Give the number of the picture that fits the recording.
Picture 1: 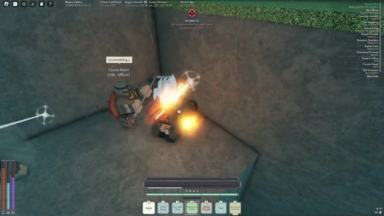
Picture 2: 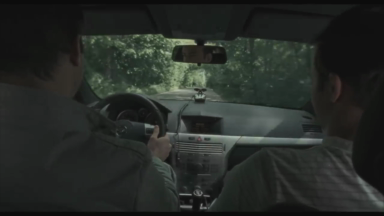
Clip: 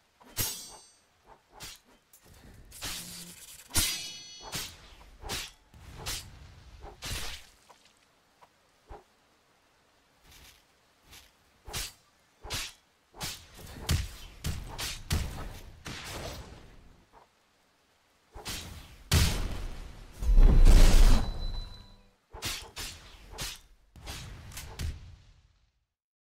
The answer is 1